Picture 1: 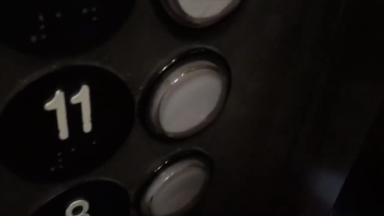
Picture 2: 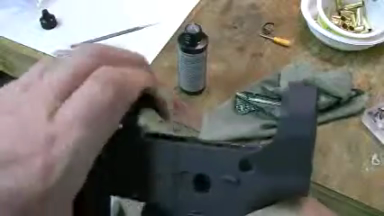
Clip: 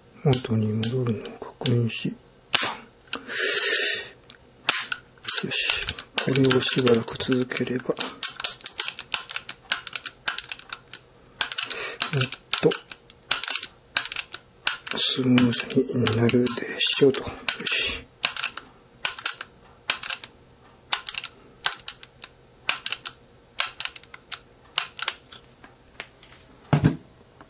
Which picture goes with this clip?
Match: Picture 2